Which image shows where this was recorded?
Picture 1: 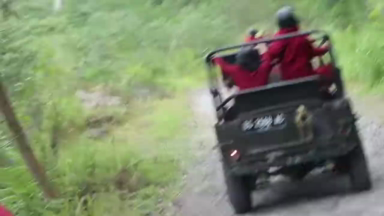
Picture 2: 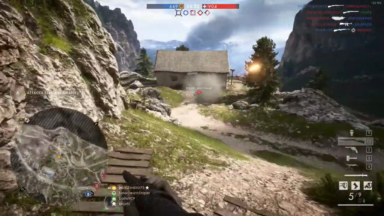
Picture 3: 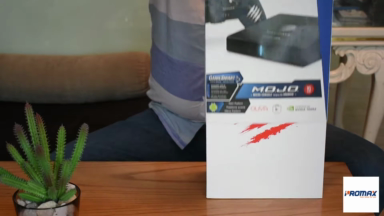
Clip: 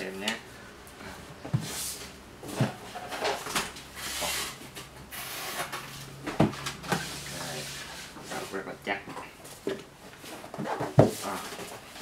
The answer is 3